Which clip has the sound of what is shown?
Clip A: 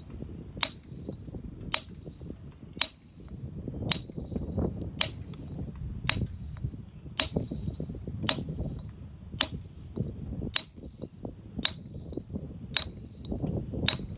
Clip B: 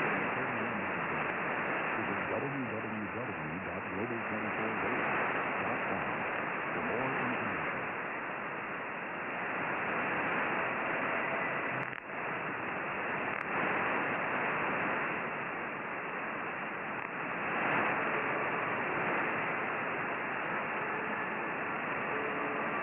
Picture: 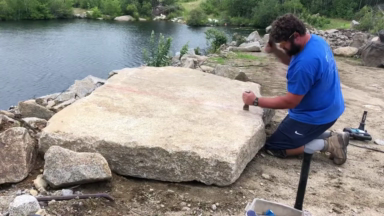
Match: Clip A